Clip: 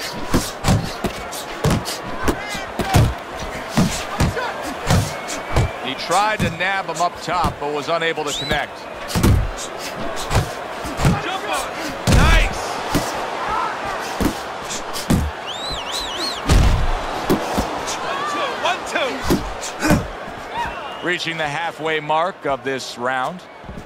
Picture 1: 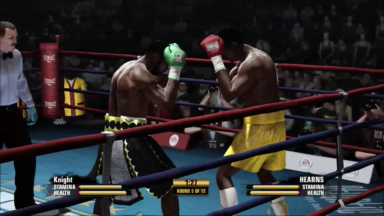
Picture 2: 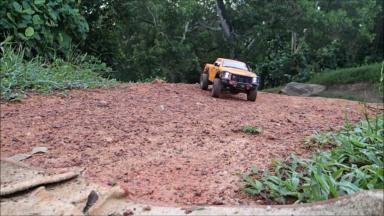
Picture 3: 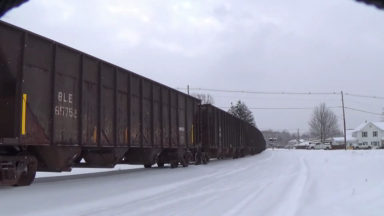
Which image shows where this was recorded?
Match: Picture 1